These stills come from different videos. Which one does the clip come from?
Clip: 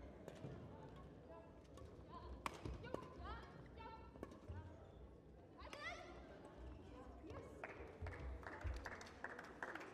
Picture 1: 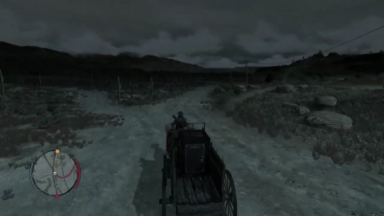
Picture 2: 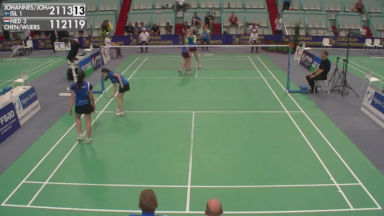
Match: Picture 2